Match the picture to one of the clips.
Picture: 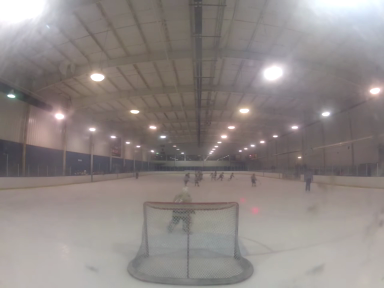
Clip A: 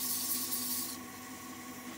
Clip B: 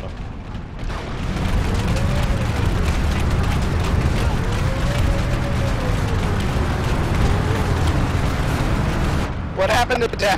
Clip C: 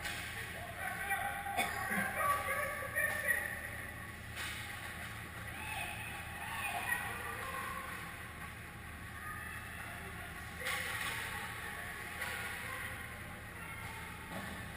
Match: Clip C